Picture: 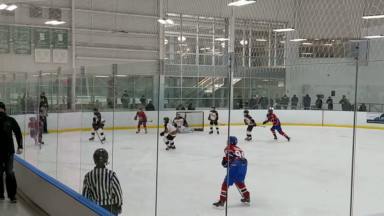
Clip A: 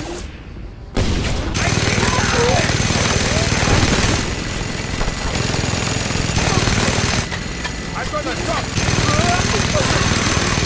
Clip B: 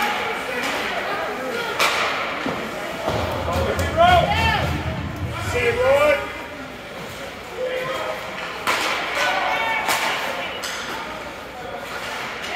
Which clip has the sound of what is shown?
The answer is B